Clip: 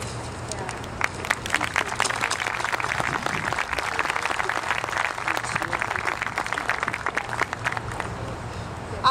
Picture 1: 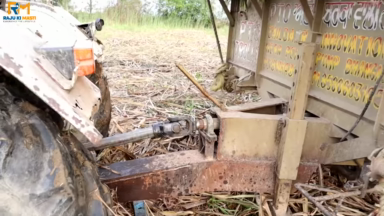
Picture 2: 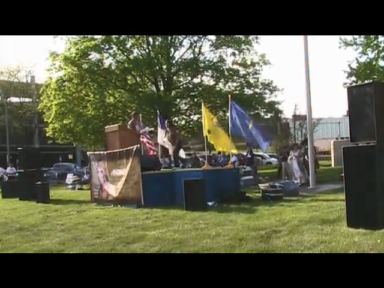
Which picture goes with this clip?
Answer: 2